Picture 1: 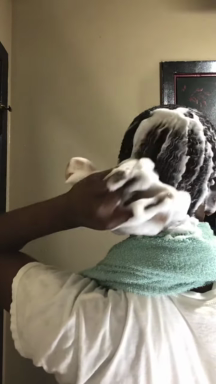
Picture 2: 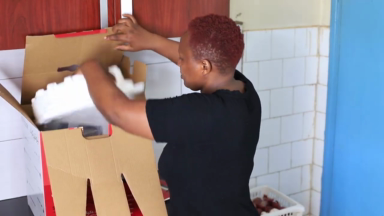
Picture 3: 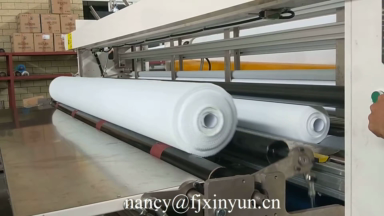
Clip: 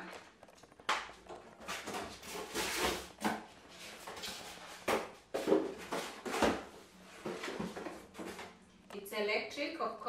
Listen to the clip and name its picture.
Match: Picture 2